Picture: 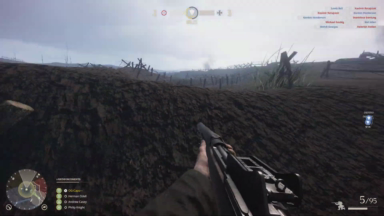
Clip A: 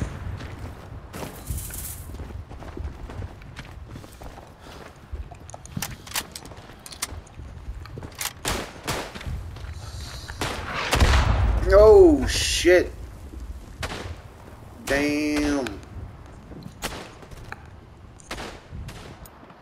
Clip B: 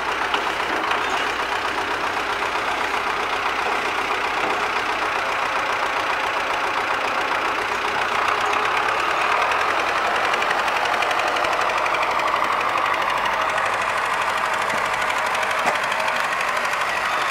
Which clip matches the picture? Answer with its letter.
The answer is A